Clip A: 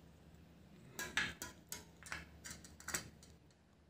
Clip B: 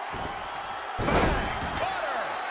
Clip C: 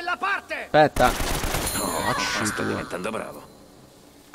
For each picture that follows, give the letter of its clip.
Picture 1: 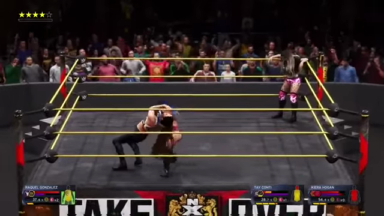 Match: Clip B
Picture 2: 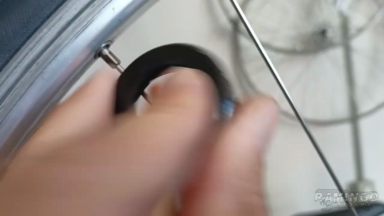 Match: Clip A